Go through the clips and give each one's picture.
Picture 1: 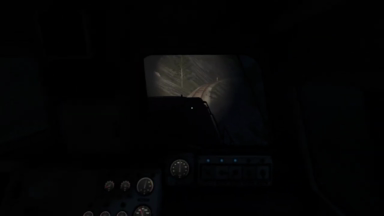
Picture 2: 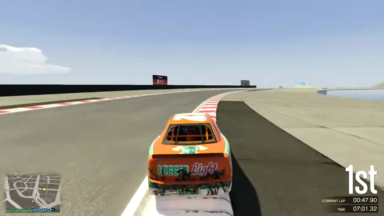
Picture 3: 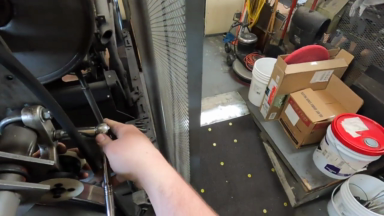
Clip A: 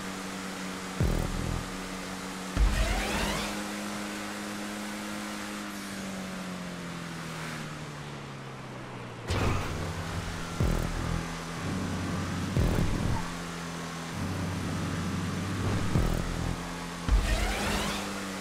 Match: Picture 2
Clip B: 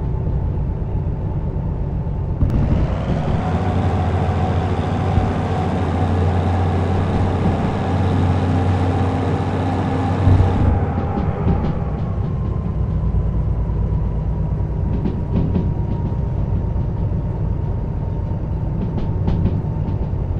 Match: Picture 1